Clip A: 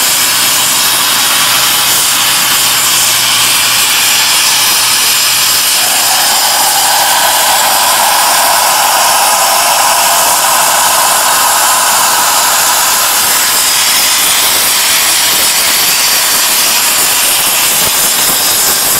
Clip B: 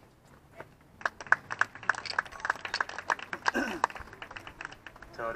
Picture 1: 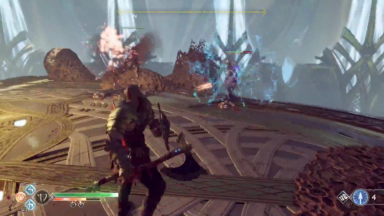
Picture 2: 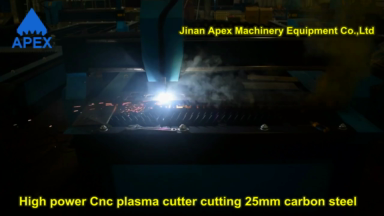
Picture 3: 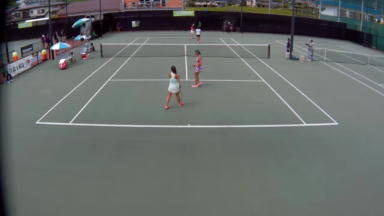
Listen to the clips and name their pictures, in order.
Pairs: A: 2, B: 3